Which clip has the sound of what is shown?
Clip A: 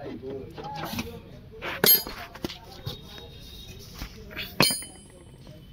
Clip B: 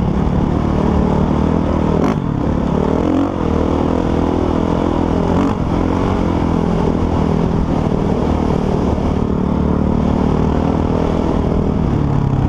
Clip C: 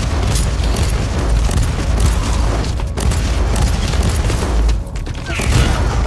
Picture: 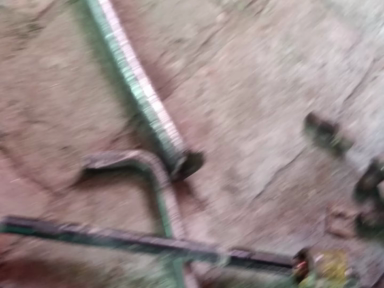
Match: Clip A